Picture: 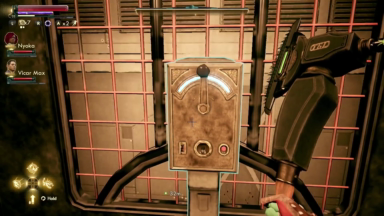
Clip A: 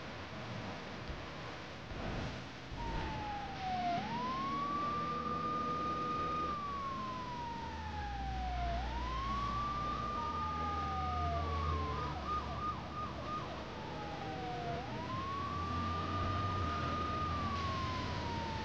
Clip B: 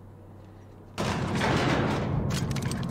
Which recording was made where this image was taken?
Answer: B